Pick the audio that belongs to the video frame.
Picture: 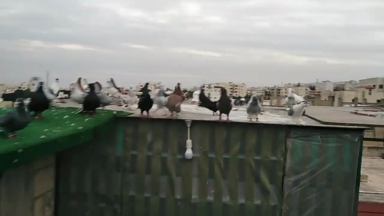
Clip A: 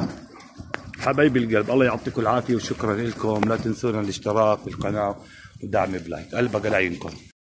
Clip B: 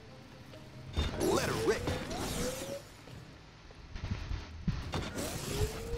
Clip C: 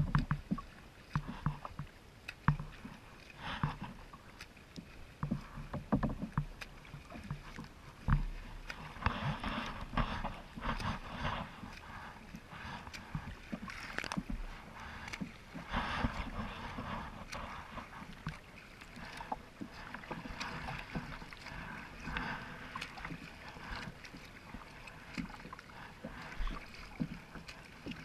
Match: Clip A